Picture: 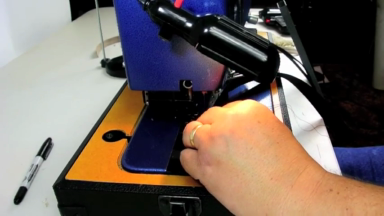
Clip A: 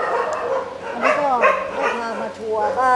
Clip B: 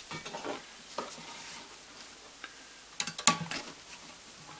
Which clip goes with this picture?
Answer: B